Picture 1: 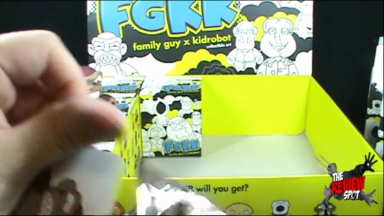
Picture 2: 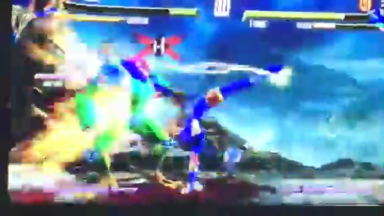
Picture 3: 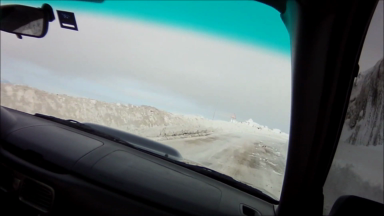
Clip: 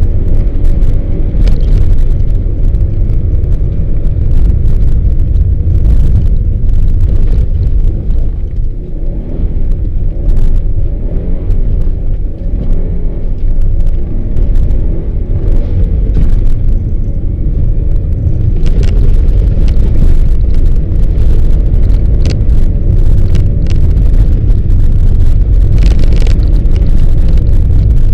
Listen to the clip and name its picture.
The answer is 3